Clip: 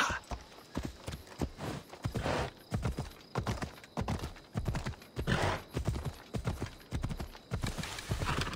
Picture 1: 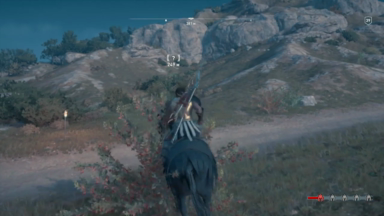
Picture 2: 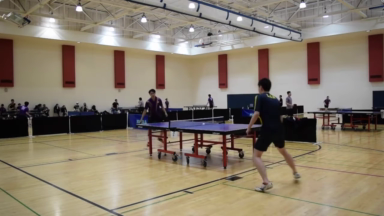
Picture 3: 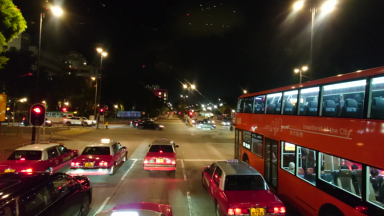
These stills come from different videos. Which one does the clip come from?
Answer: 1